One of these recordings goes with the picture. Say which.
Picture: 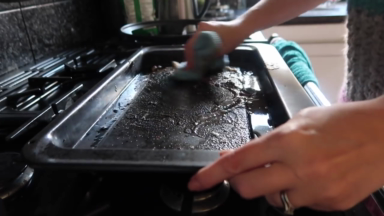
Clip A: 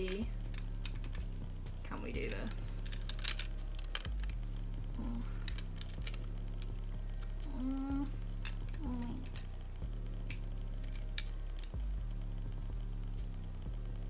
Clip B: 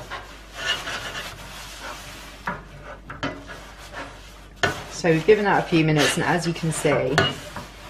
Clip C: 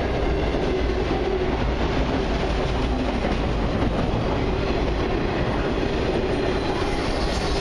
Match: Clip B